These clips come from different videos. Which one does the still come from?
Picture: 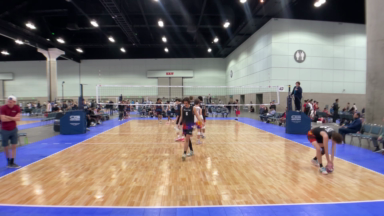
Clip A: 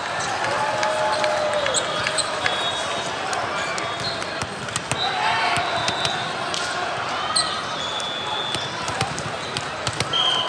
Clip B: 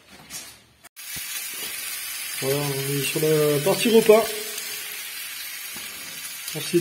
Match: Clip A